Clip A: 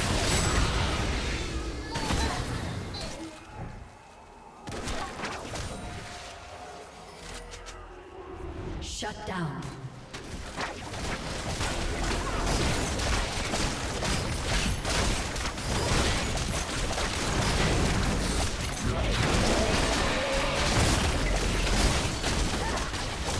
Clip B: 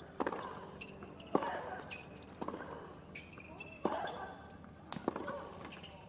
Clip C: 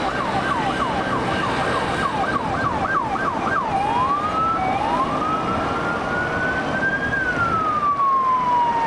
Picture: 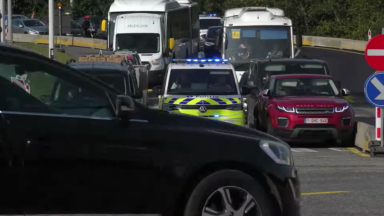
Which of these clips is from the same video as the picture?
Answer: C